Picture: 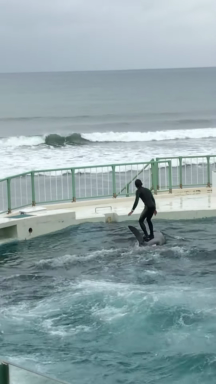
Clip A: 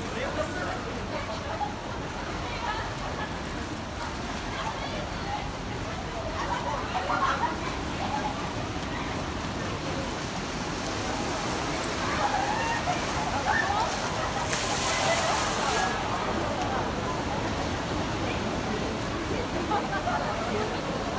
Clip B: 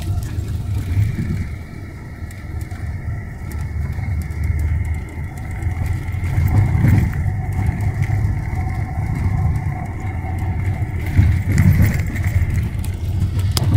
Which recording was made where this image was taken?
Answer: A